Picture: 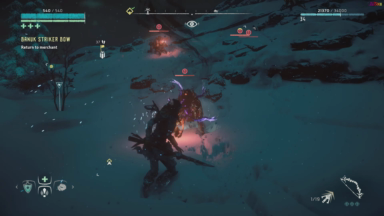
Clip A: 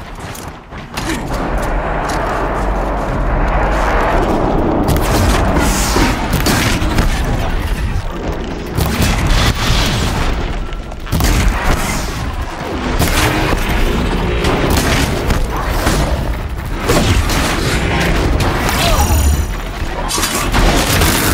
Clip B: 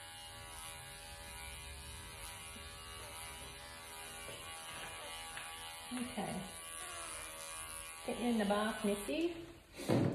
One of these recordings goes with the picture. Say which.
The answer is A